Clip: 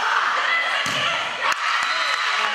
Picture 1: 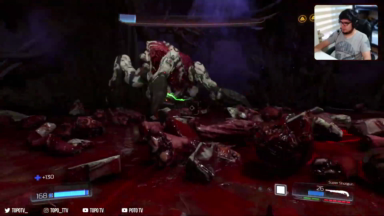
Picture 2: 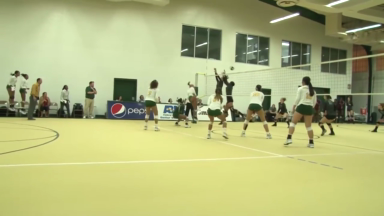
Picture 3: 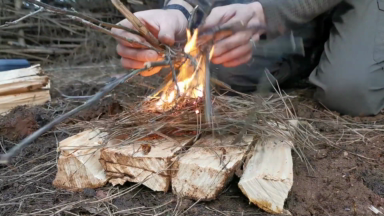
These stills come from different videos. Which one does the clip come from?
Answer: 2